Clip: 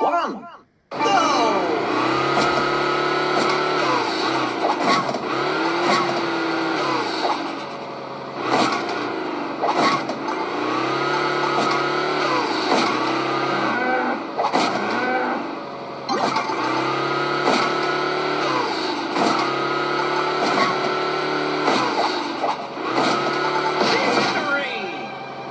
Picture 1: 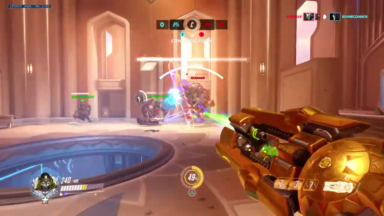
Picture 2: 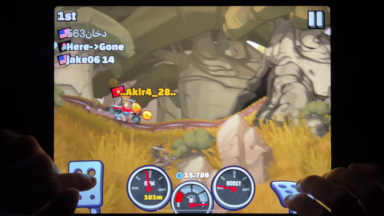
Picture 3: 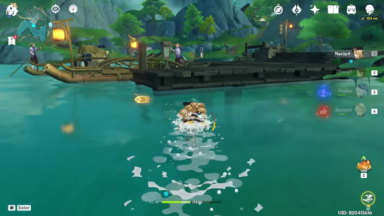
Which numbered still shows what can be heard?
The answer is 2